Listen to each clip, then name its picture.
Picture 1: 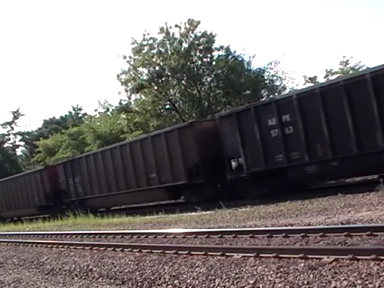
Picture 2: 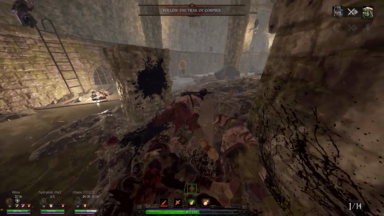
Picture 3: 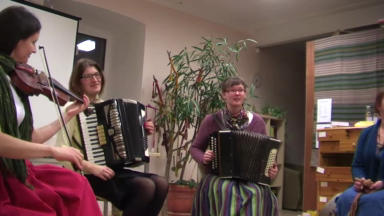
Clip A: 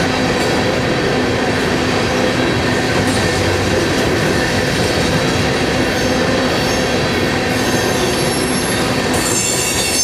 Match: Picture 1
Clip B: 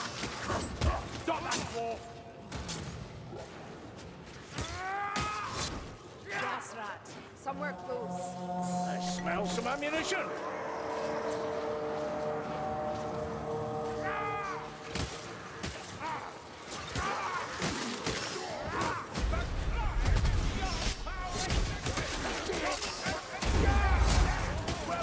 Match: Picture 2